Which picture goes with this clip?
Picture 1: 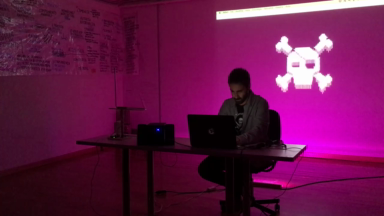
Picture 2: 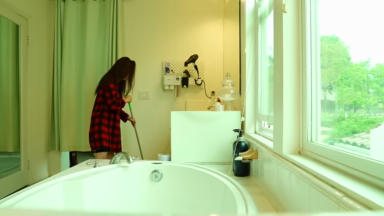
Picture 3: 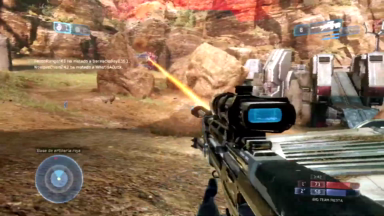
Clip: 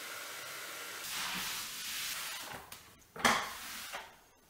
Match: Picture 2